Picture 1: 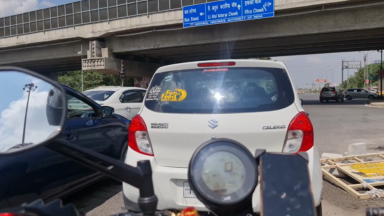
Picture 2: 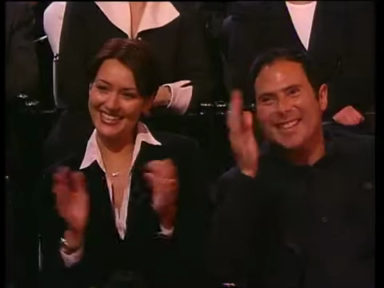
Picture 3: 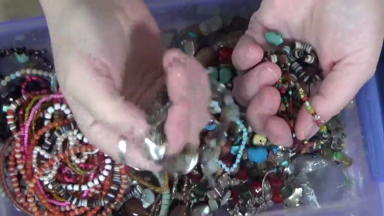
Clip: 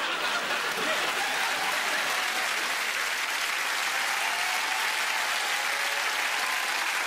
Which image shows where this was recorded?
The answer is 2